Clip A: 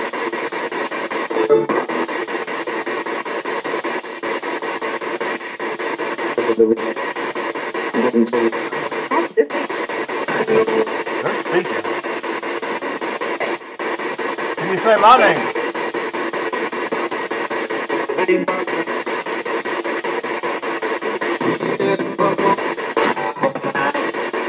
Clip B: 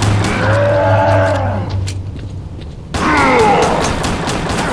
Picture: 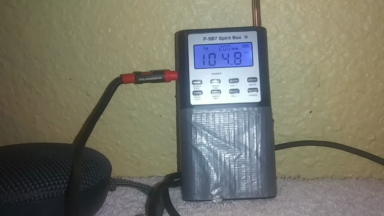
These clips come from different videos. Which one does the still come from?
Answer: A